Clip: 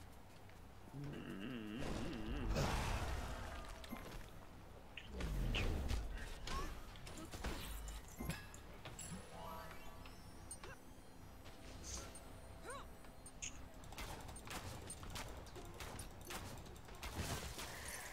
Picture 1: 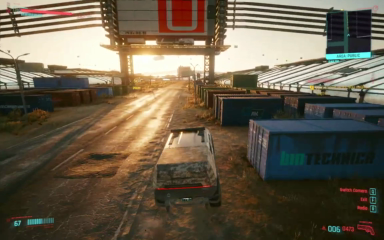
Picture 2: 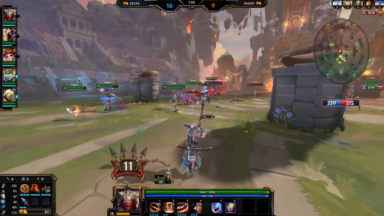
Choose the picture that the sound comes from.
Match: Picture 2